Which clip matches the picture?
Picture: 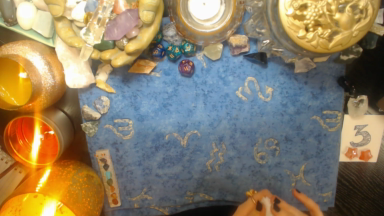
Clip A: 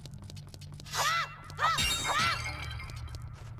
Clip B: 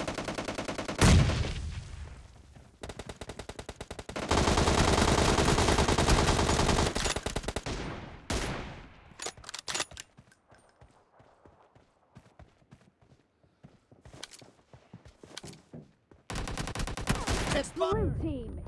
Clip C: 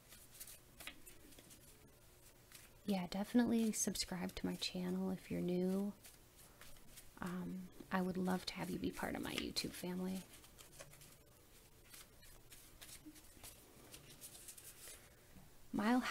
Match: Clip C